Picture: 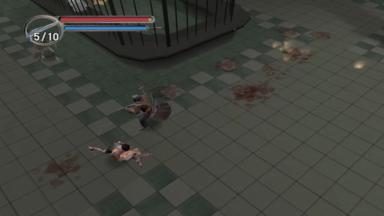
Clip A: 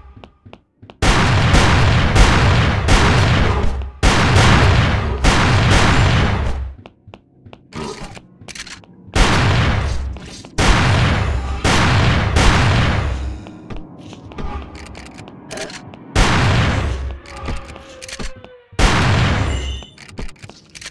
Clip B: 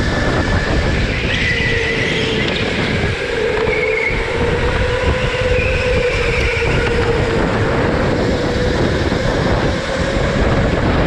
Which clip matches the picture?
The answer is A